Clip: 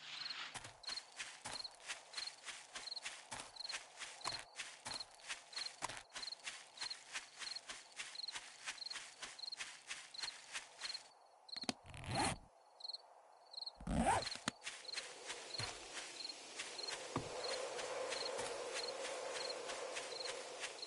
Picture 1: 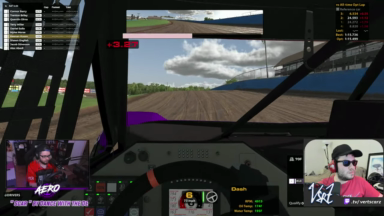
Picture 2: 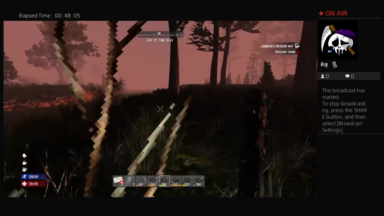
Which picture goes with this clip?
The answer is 2